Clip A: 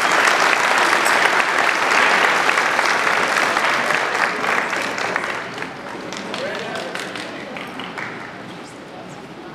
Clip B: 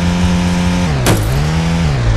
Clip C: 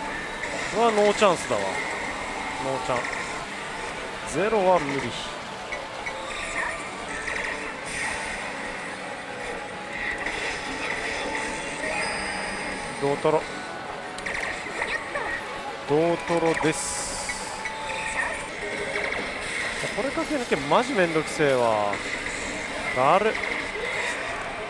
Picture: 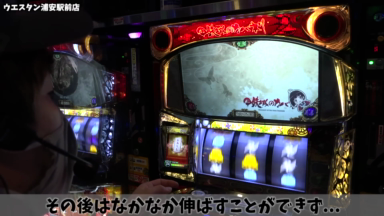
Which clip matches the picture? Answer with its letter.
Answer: C